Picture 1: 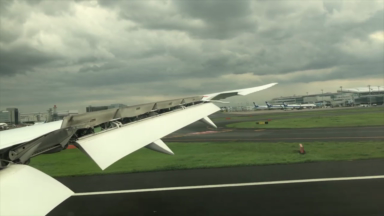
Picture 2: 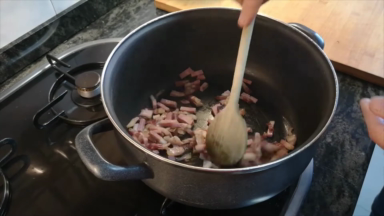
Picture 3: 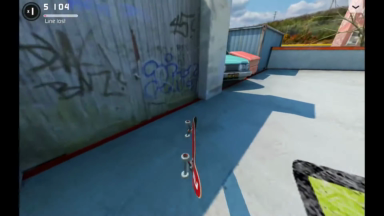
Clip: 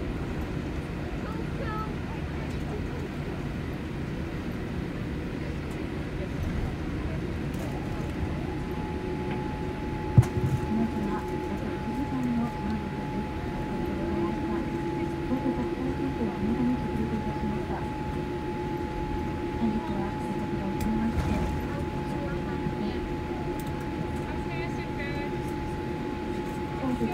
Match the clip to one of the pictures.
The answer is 1